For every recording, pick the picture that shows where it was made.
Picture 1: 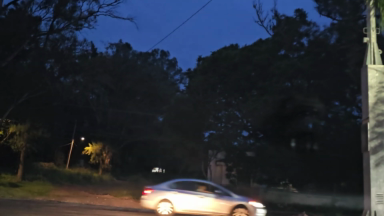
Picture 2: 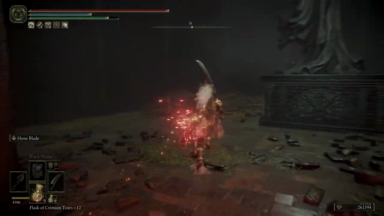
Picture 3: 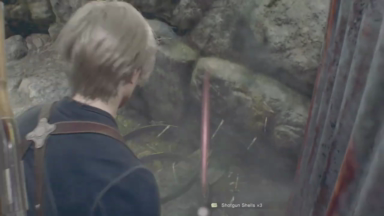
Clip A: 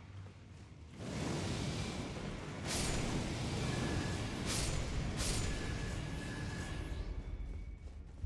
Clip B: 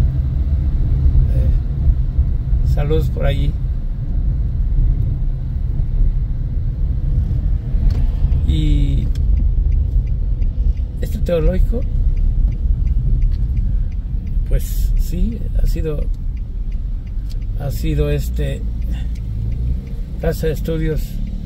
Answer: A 2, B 1